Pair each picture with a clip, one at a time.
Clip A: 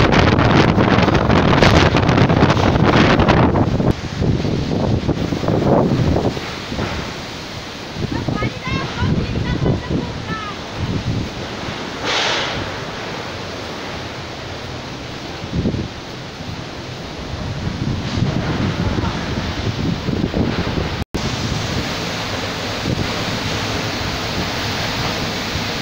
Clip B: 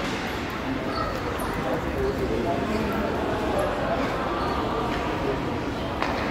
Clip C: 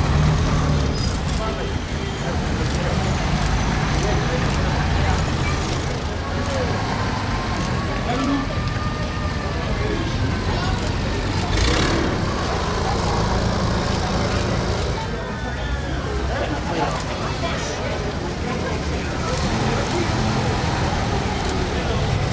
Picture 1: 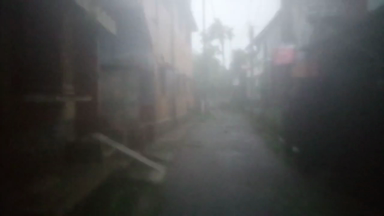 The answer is A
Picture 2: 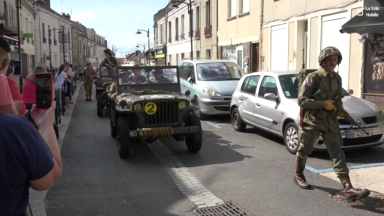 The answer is C